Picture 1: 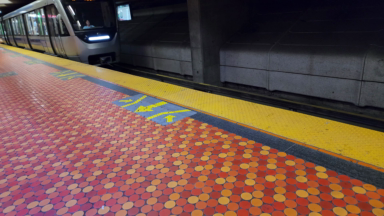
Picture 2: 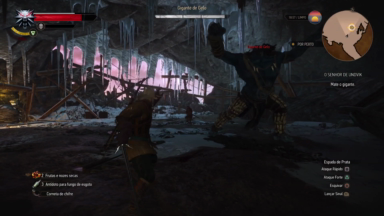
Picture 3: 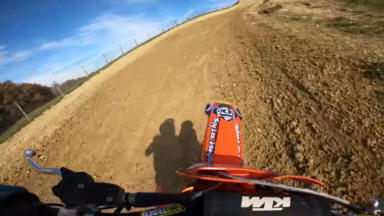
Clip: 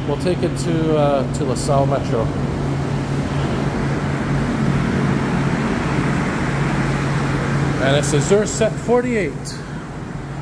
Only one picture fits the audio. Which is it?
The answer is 1